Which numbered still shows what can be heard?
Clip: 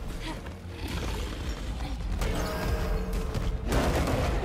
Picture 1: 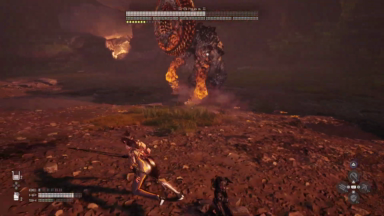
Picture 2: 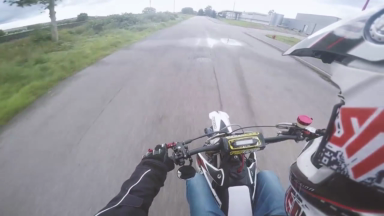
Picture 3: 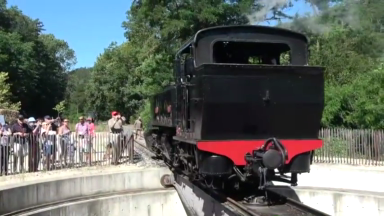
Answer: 1